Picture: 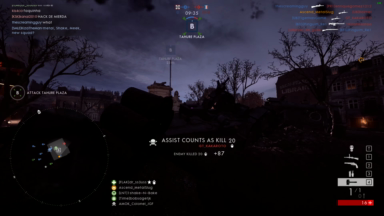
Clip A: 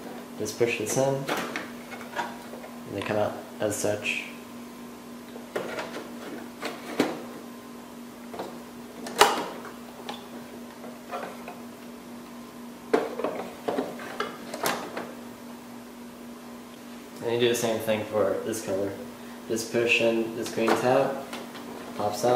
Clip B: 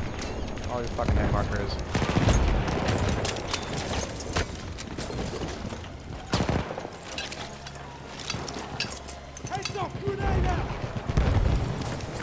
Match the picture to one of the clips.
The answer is B